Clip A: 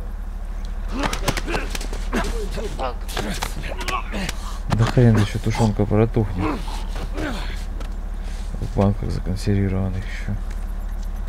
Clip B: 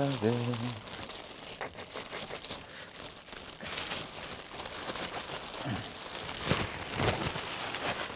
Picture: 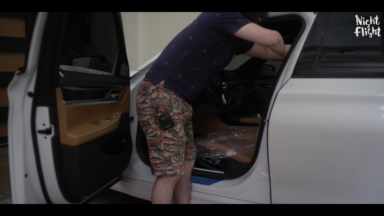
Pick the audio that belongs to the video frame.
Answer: B